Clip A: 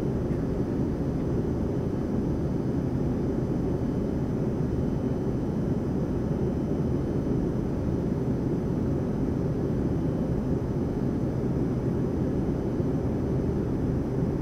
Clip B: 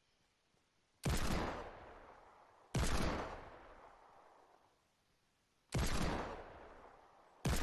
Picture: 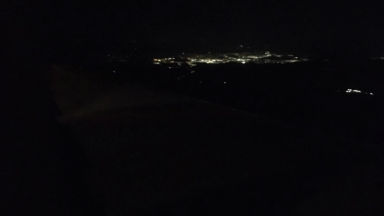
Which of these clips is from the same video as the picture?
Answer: A